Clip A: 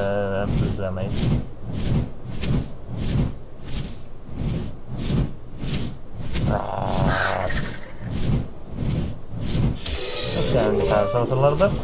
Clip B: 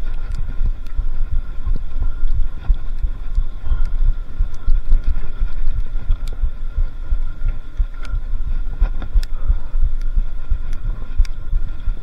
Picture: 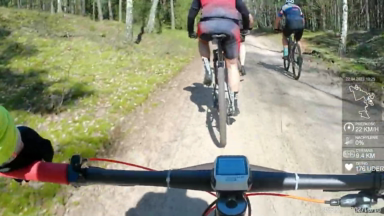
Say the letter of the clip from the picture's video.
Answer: B